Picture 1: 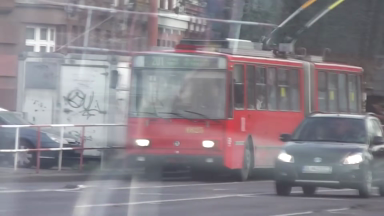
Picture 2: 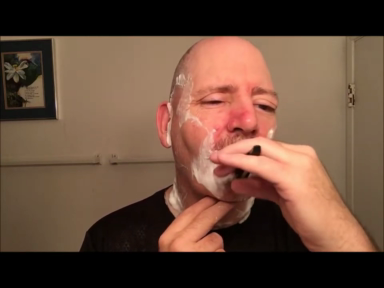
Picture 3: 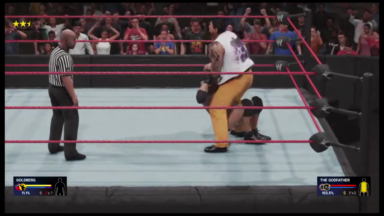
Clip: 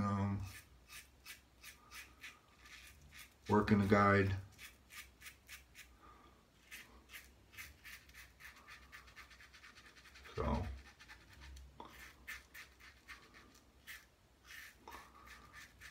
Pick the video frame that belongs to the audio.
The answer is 2